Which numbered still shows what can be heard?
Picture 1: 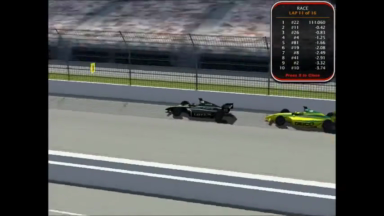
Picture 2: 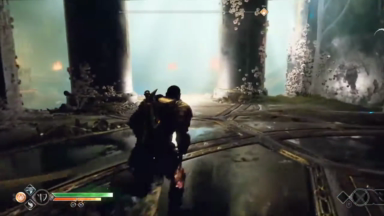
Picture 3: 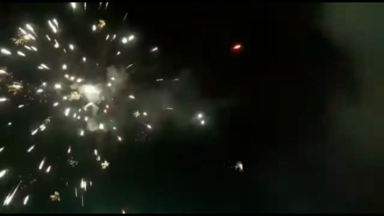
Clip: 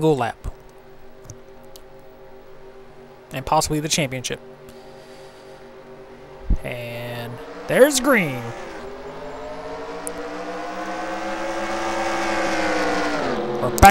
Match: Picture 1